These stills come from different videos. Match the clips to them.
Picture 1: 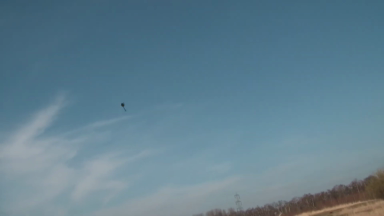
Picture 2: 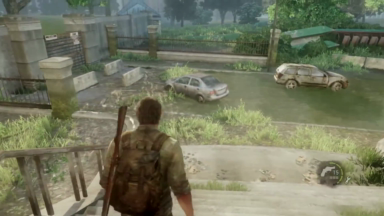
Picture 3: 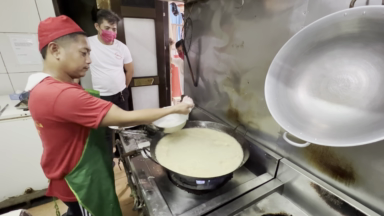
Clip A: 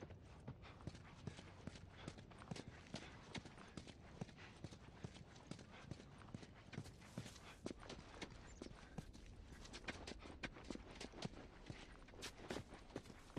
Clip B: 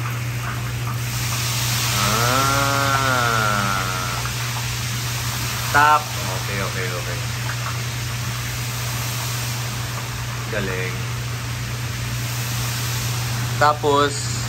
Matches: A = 2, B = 3